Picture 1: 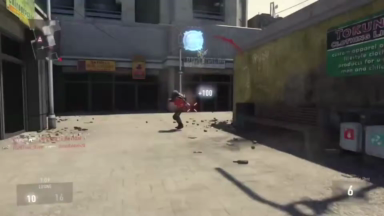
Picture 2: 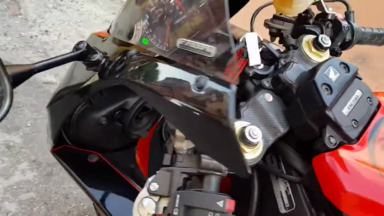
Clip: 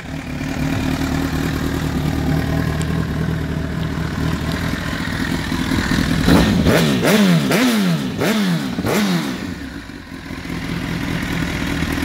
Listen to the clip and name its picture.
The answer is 2